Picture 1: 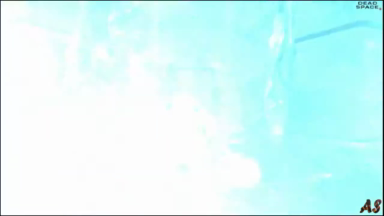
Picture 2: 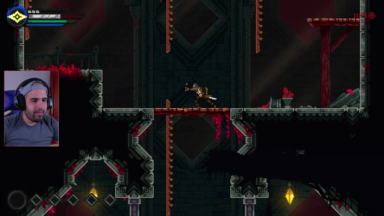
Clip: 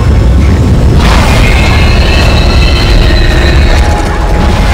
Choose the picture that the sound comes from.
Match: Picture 1